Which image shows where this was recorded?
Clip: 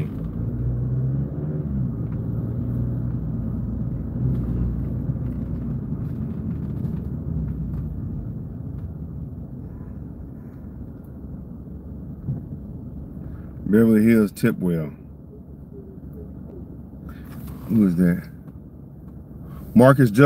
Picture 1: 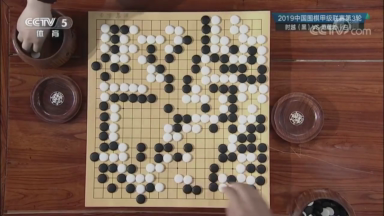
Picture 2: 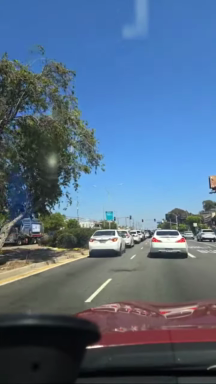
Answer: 2